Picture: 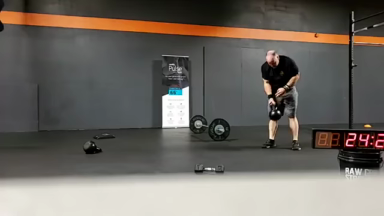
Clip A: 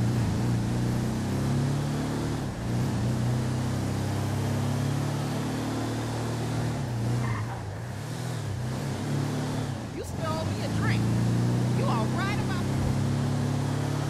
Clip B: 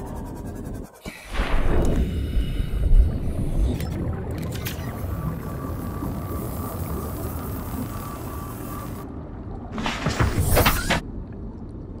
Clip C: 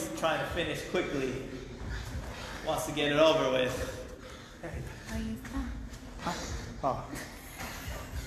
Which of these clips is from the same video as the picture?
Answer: C